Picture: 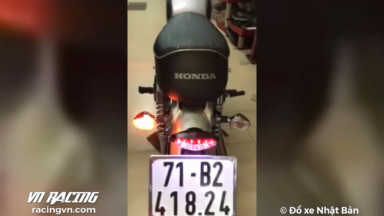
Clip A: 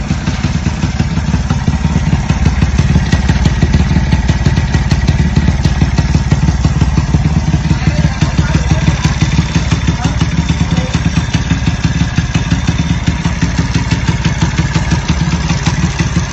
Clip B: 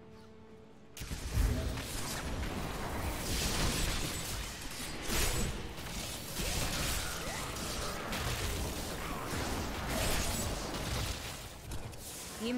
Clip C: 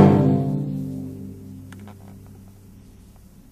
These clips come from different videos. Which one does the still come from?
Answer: A